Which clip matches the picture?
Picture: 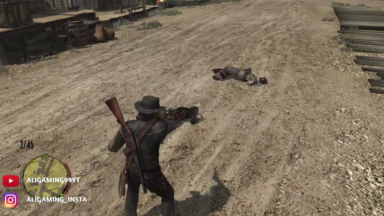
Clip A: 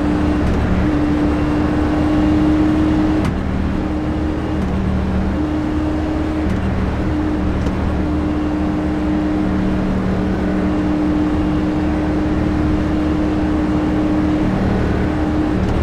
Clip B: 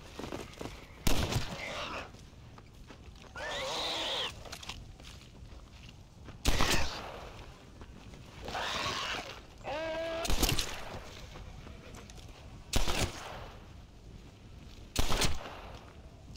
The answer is B